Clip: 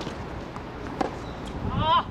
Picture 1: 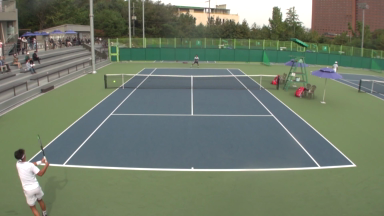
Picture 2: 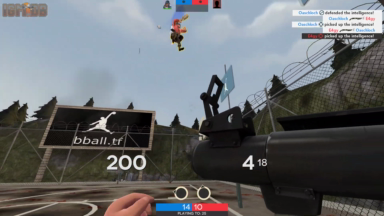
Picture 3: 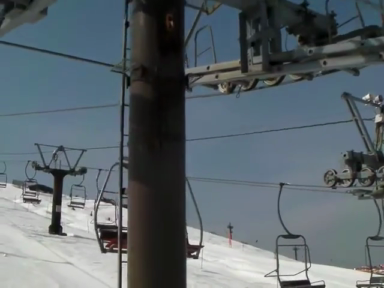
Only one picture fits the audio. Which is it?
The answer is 1